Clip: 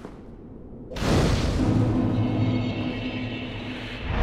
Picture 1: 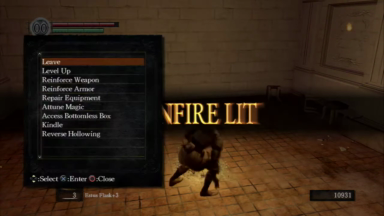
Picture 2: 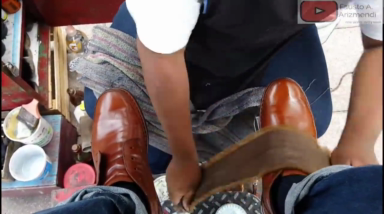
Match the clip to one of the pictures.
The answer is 1